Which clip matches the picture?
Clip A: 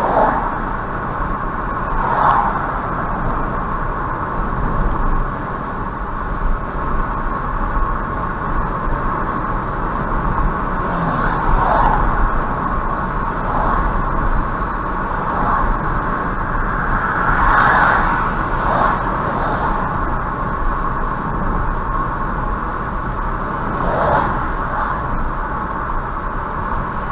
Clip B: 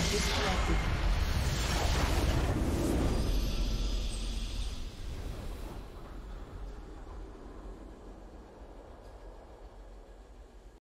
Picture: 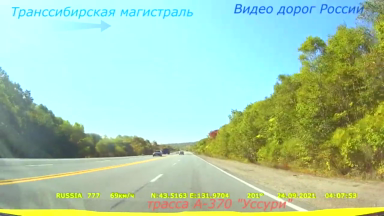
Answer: A